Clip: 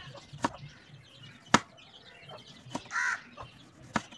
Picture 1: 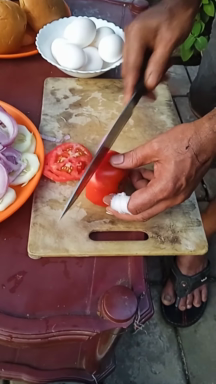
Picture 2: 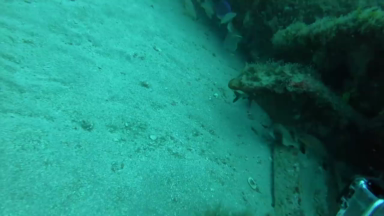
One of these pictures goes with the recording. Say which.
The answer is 1